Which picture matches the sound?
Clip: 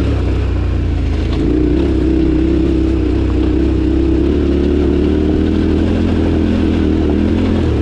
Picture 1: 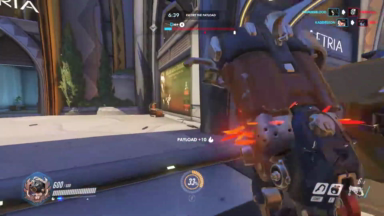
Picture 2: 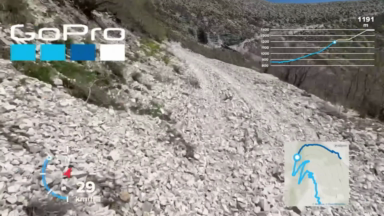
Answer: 2